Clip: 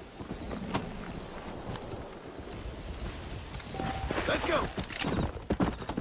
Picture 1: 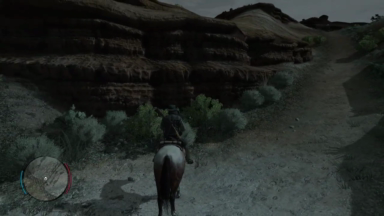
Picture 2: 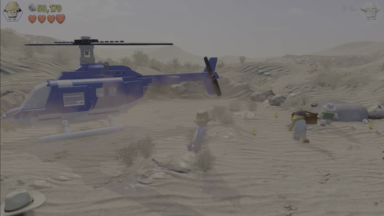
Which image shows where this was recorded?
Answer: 1